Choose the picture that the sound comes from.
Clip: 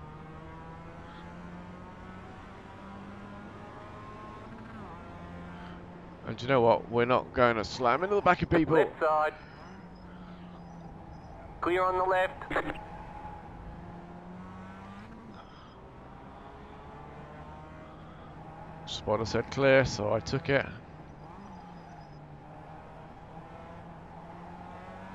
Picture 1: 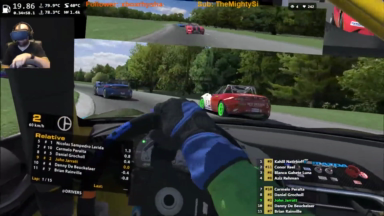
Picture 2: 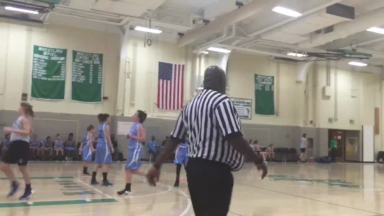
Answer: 1